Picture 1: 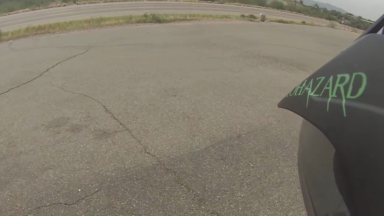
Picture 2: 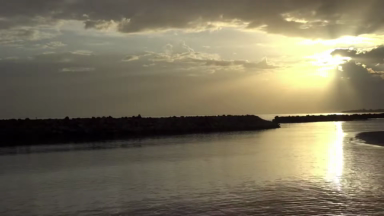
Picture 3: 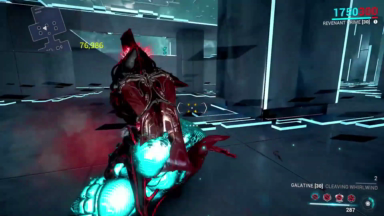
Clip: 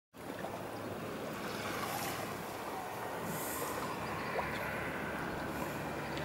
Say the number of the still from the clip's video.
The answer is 2